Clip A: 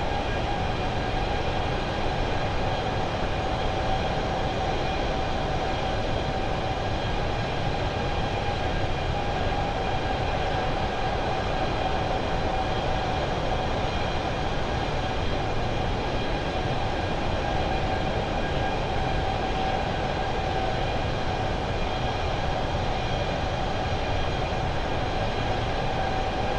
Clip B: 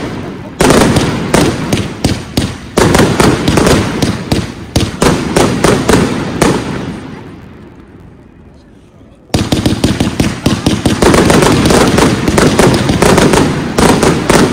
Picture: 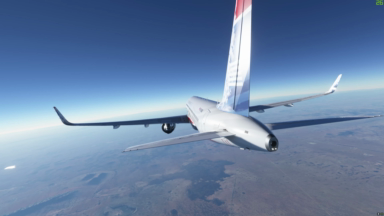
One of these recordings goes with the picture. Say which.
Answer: A